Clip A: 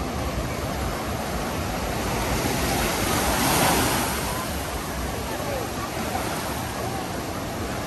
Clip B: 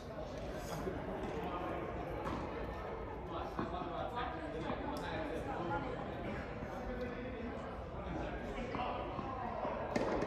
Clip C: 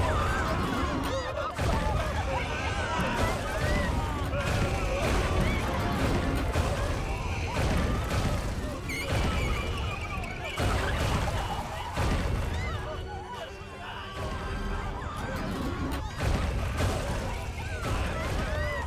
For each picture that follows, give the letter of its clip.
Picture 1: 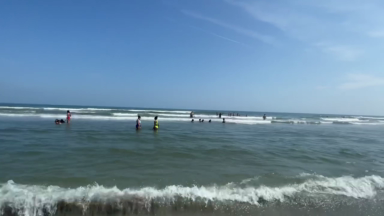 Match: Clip A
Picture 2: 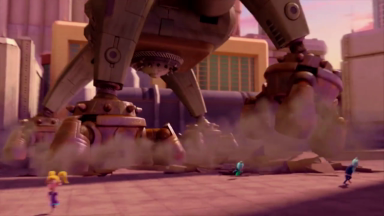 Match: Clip C